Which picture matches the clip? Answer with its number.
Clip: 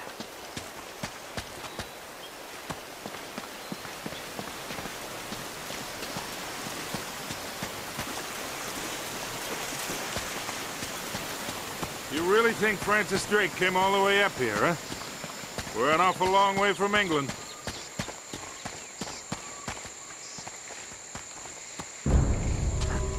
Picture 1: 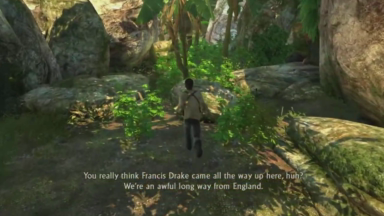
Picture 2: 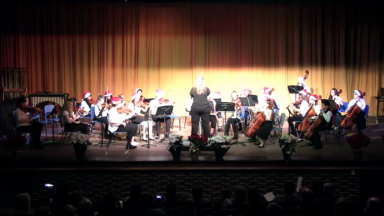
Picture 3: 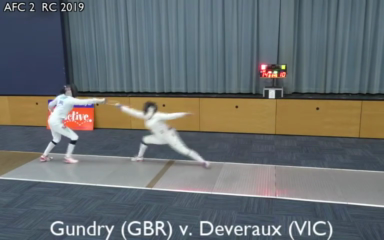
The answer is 1